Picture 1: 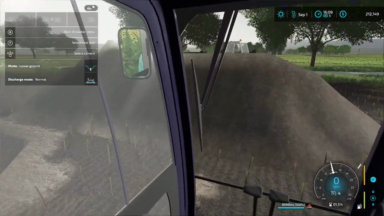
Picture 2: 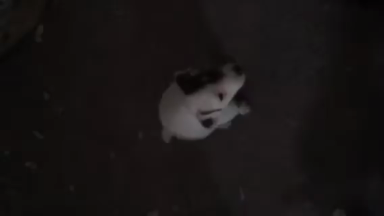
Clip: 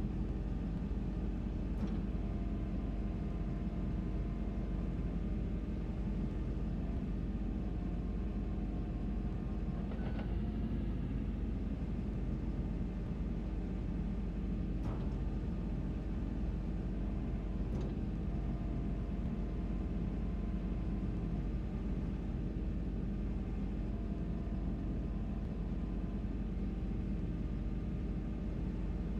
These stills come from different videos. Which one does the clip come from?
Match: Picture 1